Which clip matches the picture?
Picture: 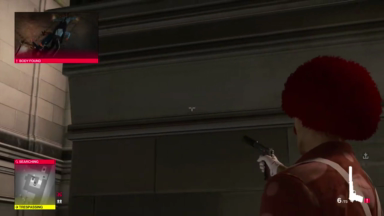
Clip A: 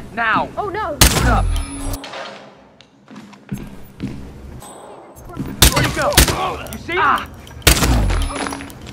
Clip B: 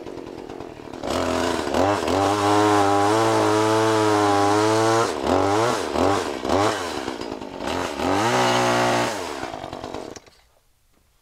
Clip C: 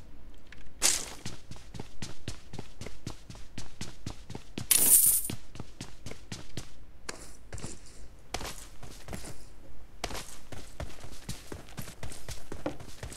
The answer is A